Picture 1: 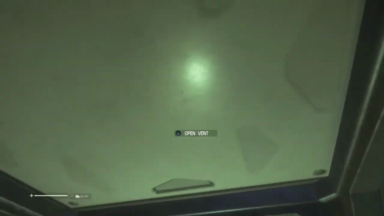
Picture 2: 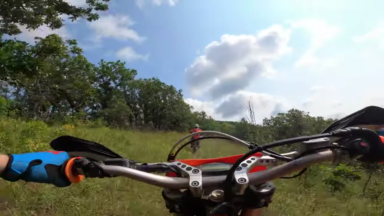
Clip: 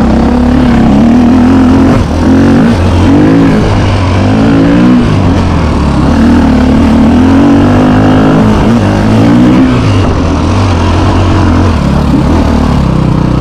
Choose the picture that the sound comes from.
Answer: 2